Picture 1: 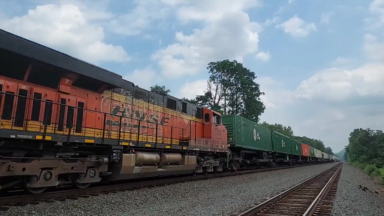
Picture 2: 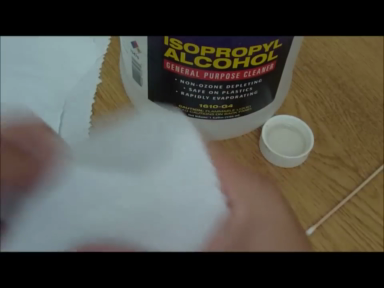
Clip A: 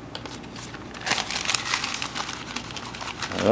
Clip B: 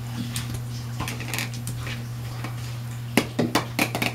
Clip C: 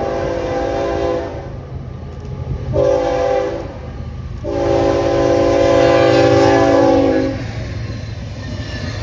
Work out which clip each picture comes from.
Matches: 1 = C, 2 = A